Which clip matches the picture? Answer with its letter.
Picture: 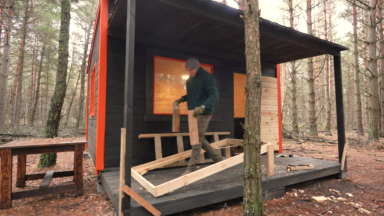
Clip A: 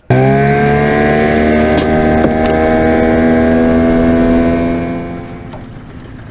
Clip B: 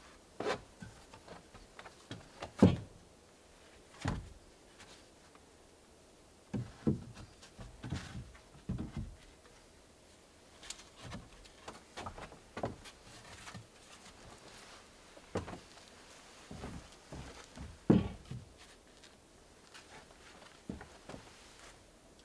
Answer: B